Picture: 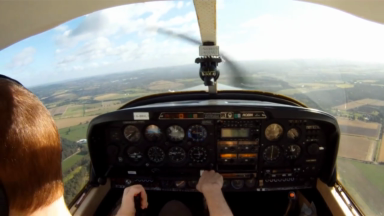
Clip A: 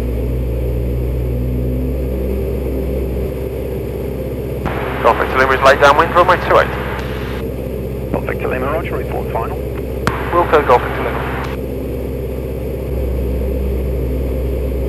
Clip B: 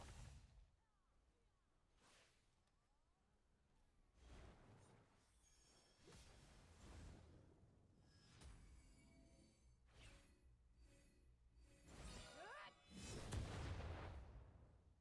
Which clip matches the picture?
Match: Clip A